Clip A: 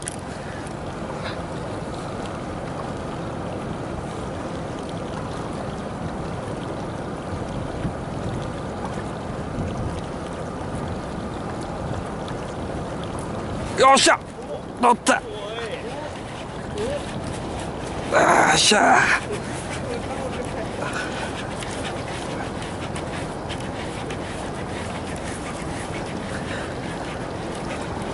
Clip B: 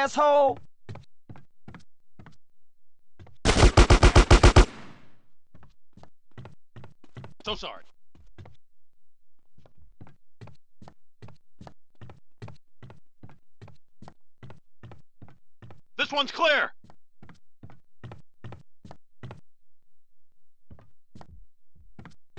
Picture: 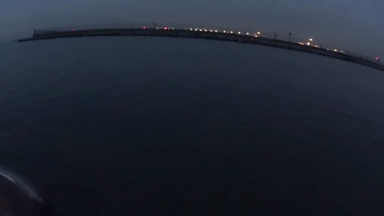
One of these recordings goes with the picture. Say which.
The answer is A